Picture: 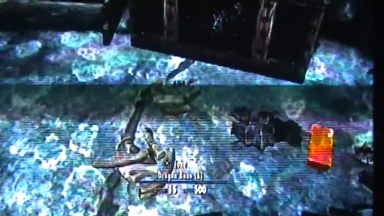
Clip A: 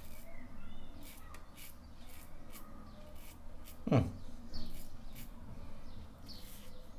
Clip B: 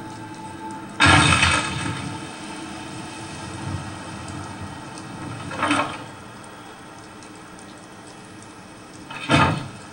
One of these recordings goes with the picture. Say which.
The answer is B